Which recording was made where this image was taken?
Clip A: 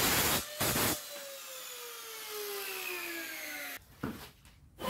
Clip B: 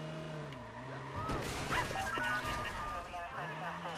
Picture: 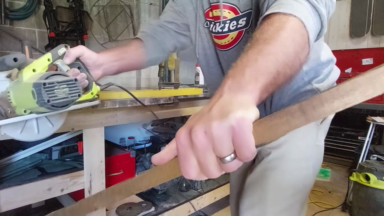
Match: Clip A